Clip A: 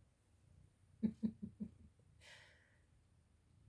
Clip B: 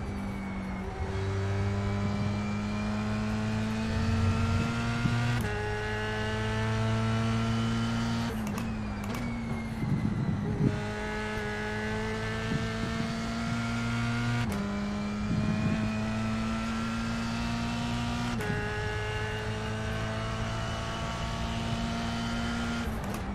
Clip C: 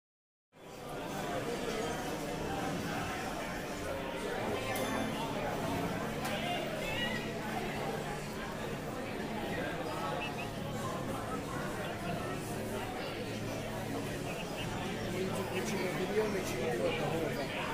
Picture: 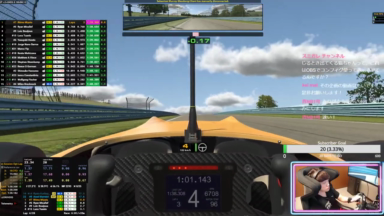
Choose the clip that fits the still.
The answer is B